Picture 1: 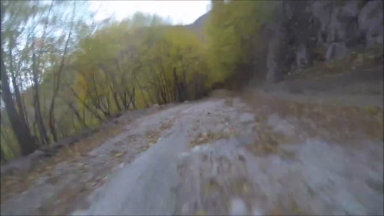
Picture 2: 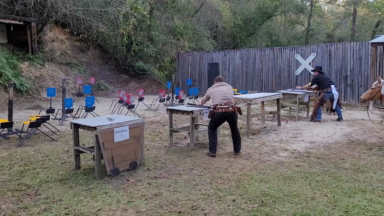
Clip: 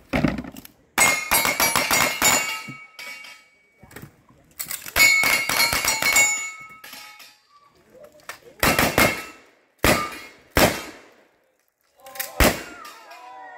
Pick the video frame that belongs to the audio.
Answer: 2